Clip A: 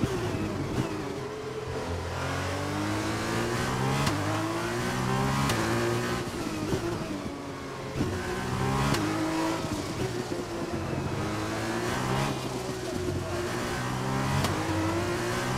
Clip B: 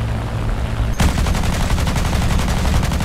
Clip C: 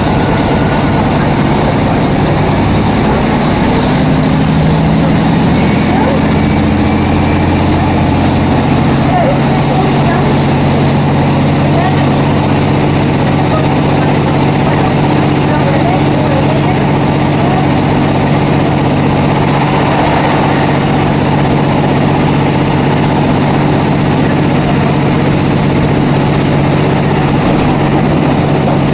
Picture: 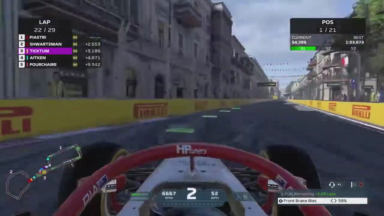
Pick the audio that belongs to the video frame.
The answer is A